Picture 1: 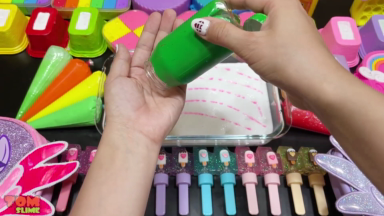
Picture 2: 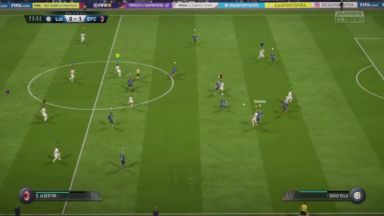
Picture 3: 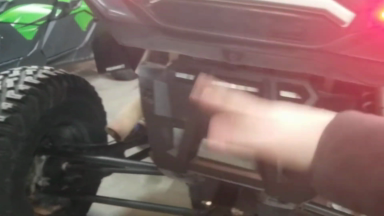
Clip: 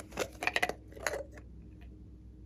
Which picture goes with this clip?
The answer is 1